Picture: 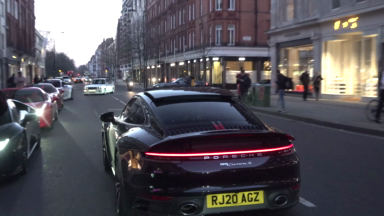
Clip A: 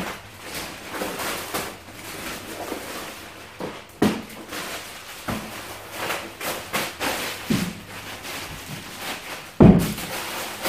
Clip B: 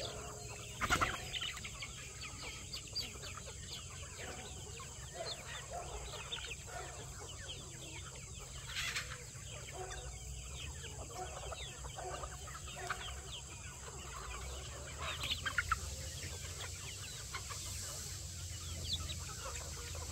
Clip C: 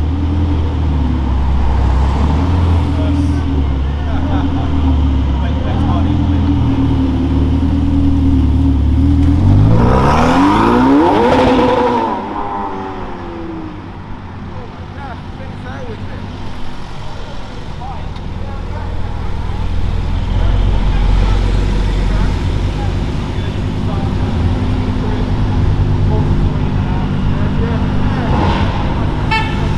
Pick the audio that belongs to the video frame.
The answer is C